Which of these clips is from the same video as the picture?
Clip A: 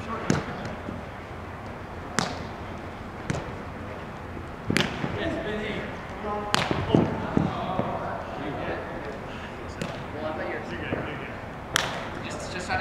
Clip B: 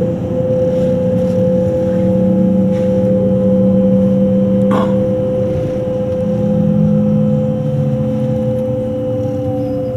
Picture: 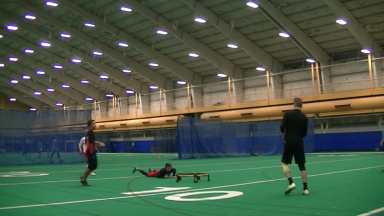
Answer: A